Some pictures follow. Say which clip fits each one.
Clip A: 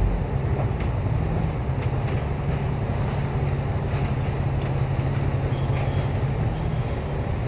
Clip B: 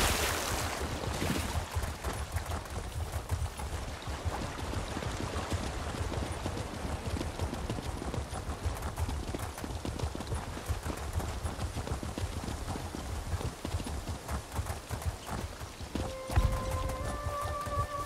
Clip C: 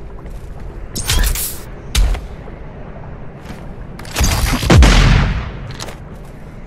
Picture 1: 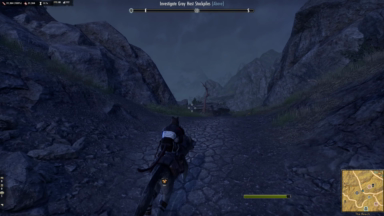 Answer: B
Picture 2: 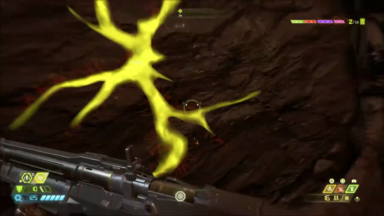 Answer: C